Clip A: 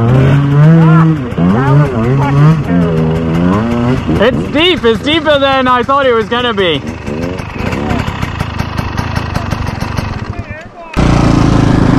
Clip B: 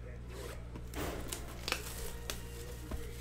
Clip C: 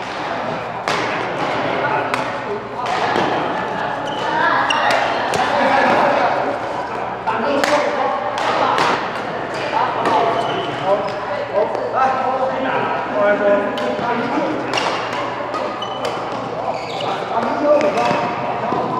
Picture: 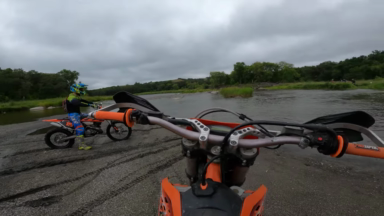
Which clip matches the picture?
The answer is A